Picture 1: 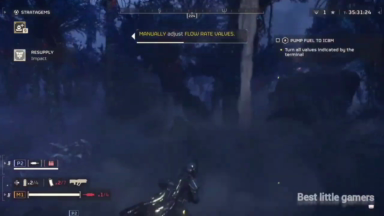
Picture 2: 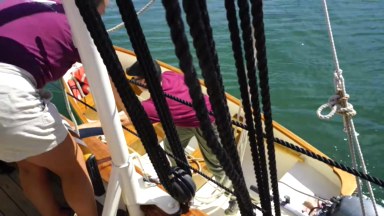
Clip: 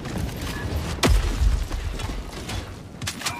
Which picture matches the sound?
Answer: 1